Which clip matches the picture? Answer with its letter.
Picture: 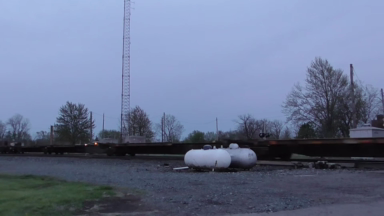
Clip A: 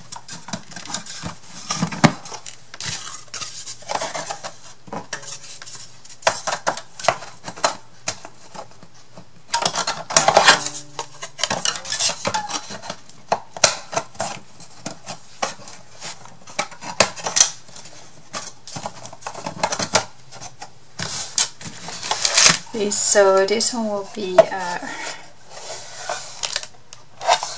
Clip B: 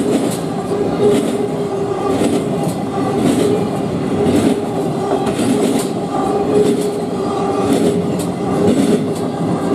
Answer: B